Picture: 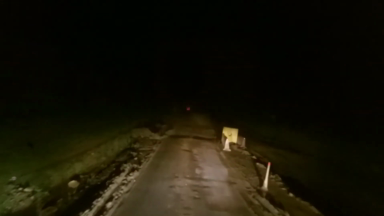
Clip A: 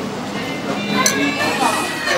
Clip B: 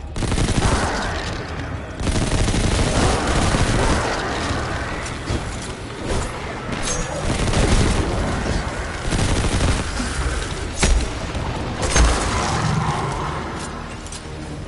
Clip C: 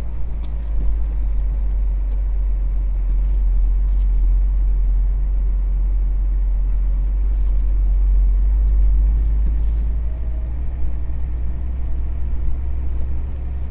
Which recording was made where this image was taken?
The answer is C